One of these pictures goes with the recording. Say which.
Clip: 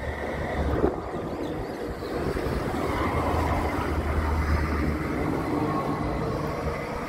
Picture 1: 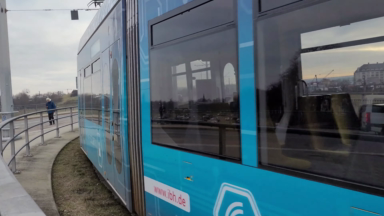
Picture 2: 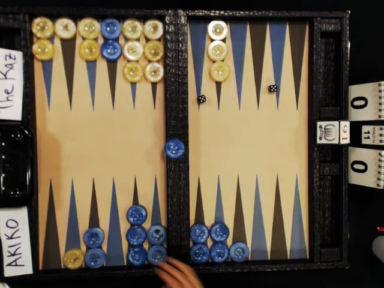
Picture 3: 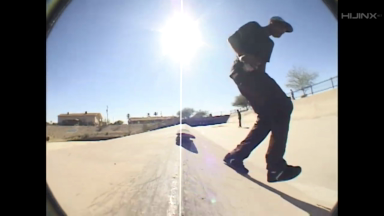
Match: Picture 1